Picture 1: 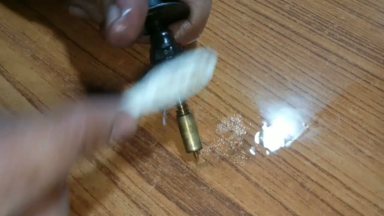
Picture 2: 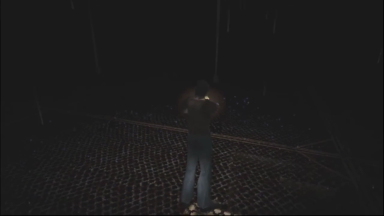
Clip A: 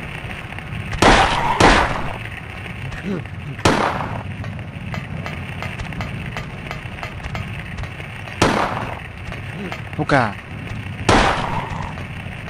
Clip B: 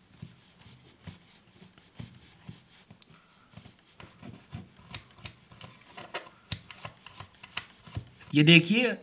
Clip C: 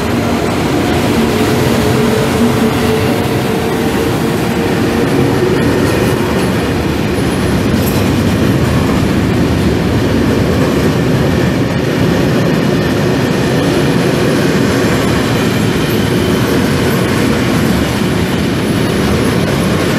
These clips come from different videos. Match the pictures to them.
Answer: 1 B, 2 A